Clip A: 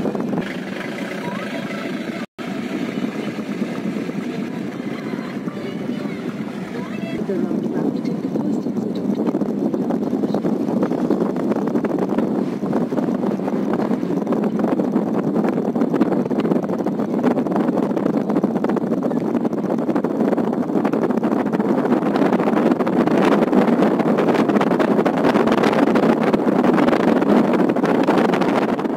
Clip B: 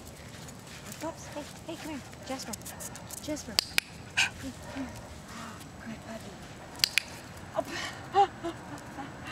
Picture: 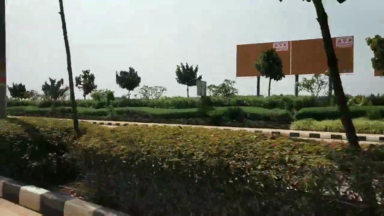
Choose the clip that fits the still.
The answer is A